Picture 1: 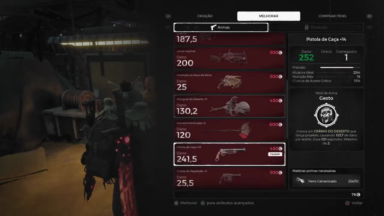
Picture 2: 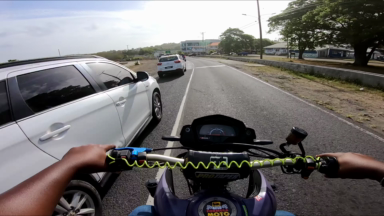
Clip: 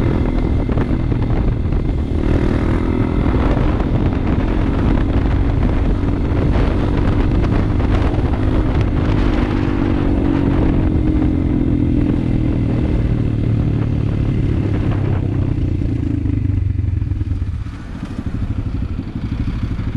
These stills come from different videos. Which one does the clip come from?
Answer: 2